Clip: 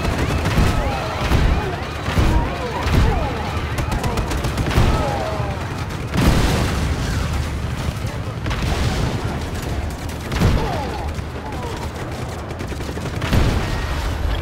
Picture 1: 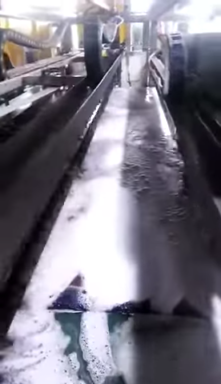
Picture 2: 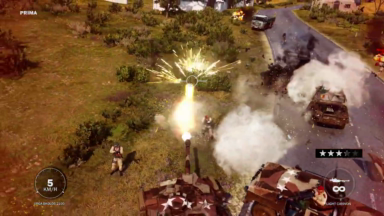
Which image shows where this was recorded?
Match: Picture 2